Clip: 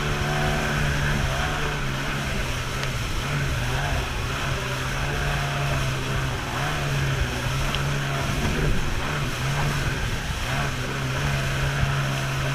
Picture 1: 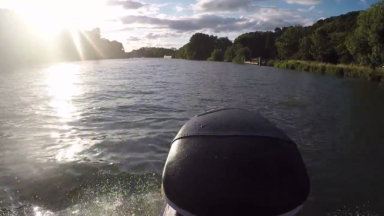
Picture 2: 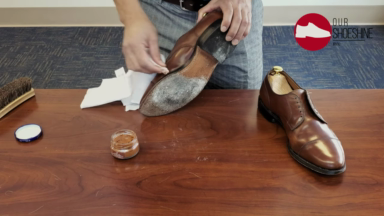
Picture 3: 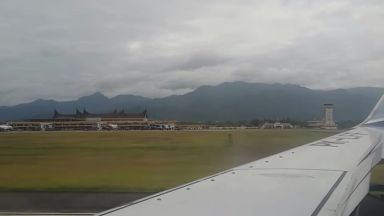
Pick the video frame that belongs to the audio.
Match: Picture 1